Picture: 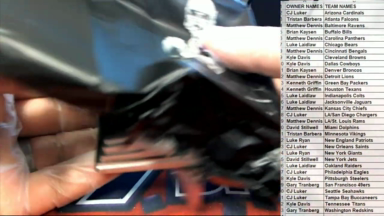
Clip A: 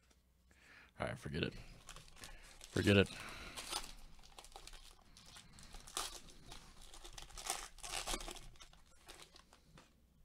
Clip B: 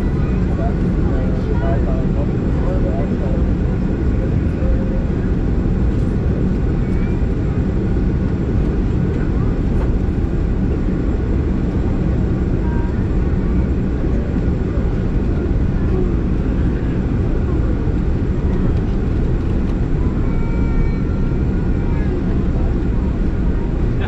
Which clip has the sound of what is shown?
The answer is A